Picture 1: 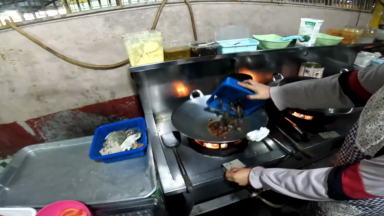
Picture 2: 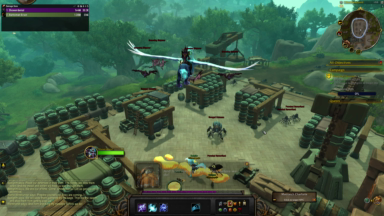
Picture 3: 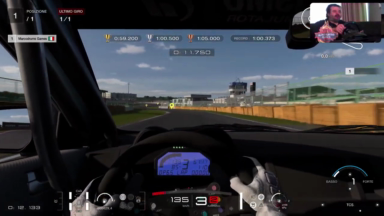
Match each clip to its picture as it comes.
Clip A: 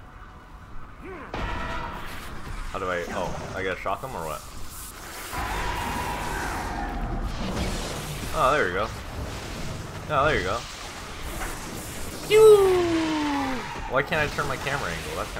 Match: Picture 2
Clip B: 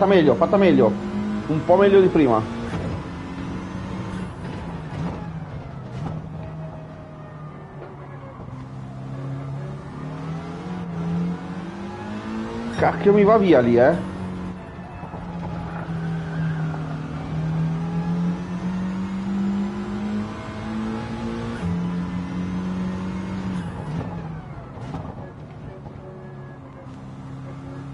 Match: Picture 3